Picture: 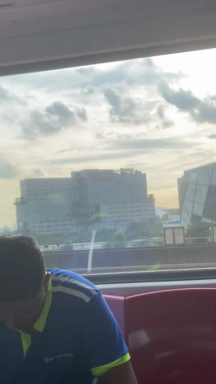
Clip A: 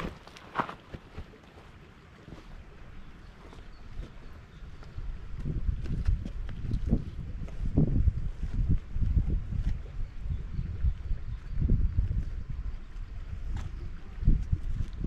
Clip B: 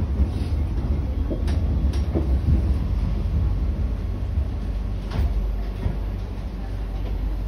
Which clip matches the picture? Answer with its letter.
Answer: B